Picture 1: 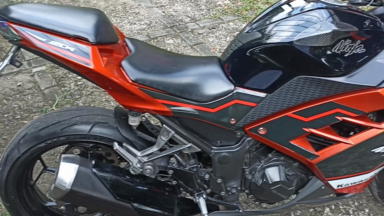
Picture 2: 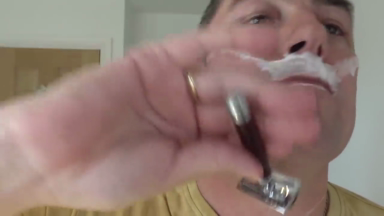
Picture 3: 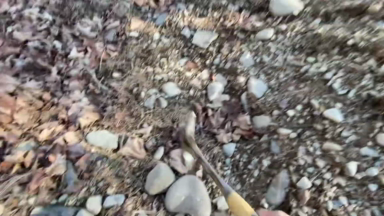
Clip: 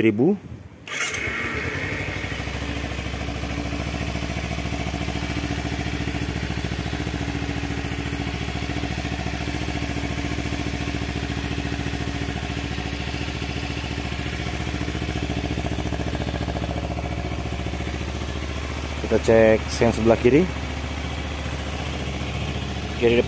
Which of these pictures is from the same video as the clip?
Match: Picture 1